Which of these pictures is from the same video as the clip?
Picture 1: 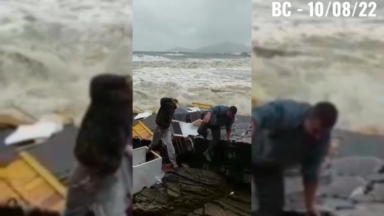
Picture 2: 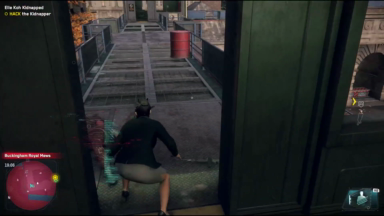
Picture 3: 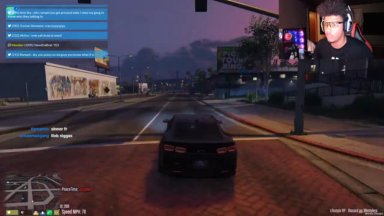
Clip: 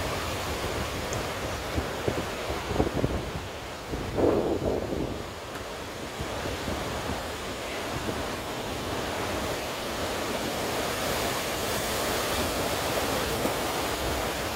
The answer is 1